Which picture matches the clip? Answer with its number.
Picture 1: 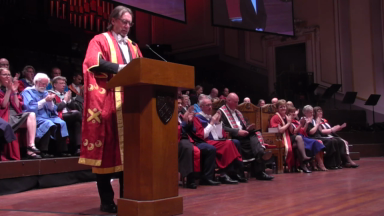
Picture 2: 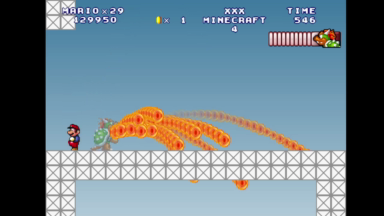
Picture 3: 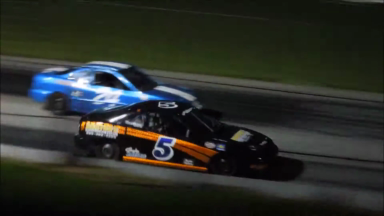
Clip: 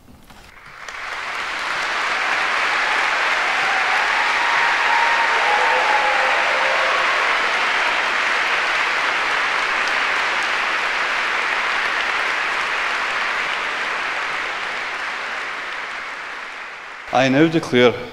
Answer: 1